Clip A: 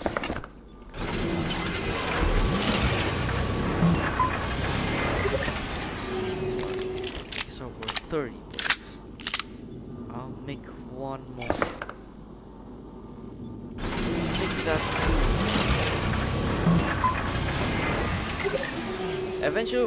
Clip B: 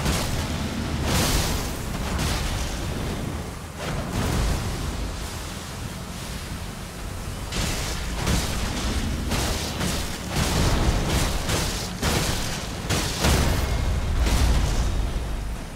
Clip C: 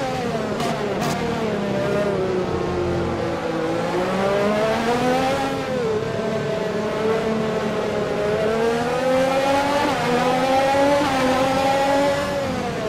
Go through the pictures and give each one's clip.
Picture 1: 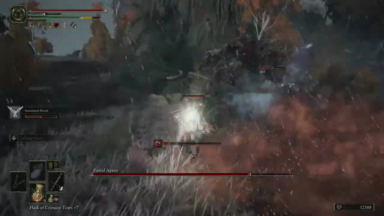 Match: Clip B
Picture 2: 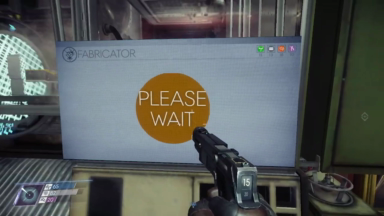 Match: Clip A